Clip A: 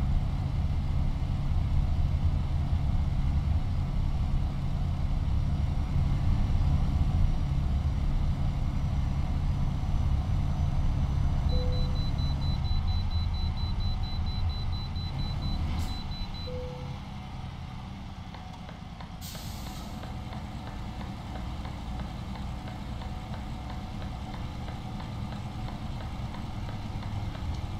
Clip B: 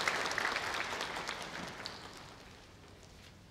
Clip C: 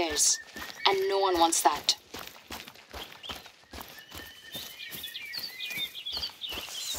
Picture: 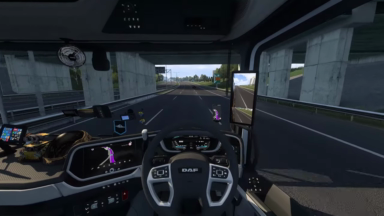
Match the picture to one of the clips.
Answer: A